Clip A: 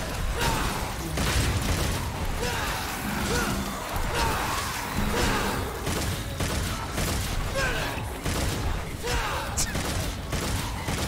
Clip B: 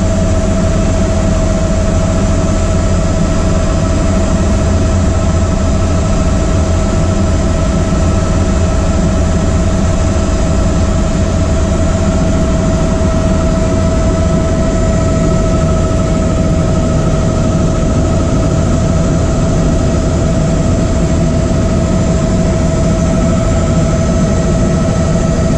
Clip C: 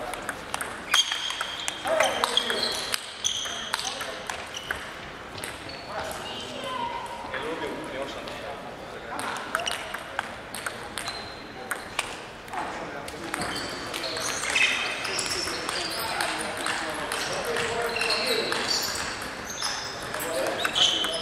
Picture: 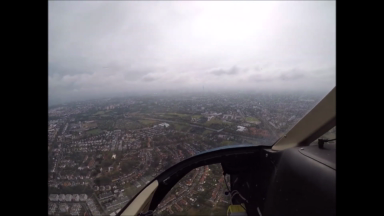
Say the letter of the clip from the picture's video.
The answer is B